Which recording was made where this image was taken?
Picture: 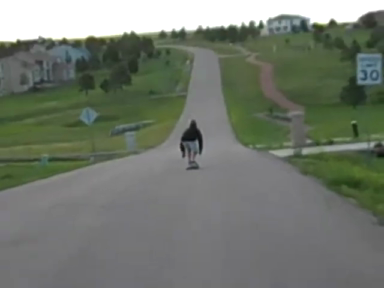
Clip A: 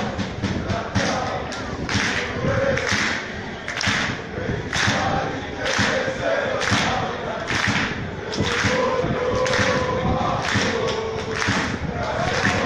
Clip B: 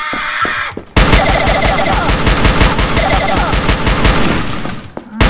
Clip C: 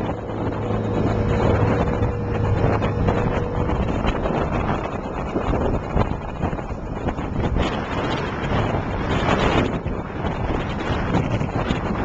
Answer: C